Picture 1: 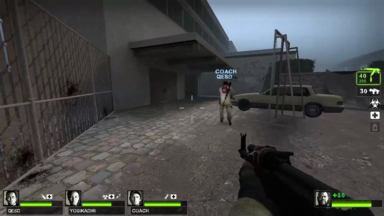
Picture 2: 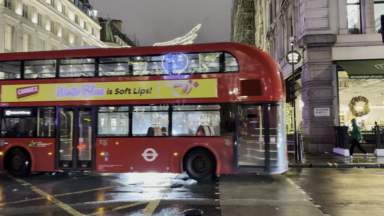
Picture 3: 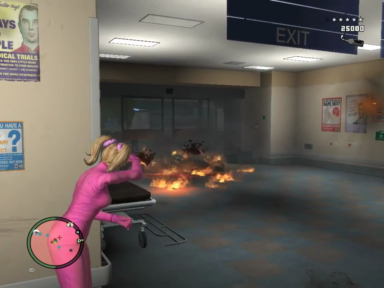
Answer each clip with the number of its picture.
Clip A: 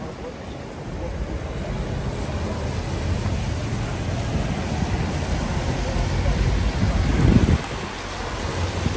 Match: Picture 2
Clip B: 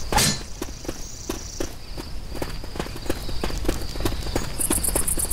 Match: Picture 1